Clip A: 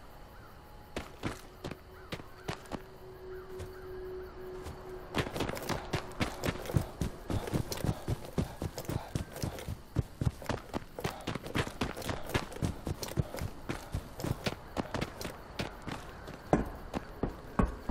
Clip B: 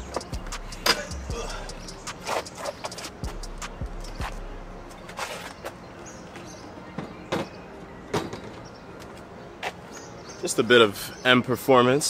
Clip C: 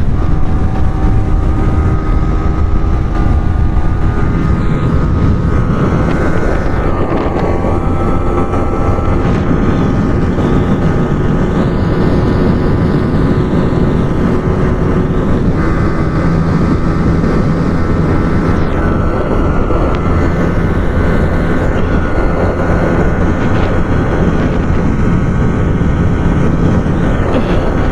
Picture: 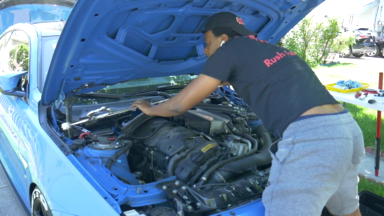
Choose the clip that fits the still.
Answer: B